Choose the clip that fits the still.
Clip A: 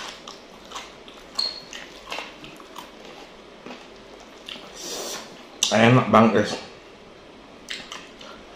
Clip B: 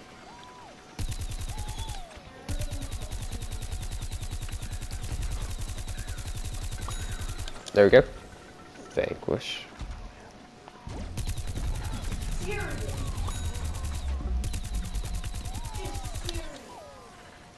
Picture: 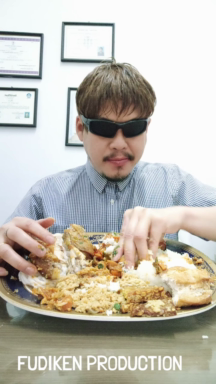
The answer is A